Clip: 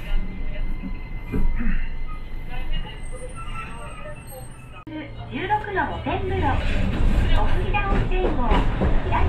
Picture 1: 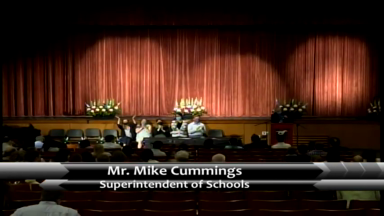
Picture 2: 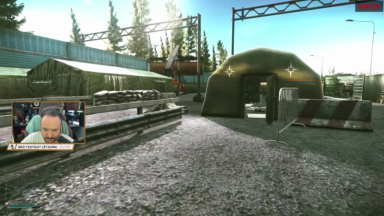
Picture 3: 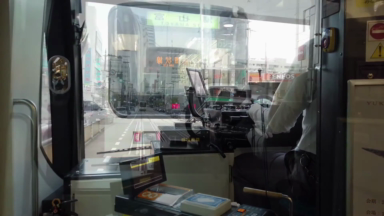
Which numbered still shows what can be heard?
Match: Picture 3